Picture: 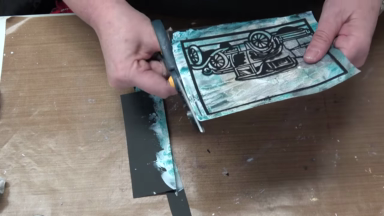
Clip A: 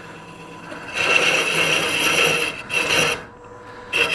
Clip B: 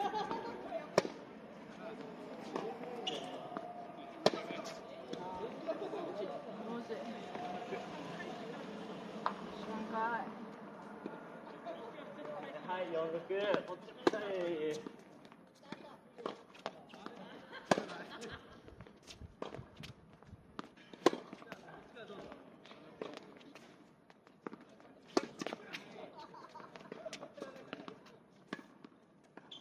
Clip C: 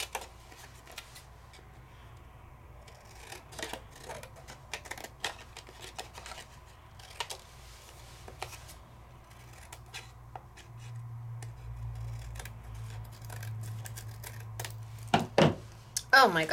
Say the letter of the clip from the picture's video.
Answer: C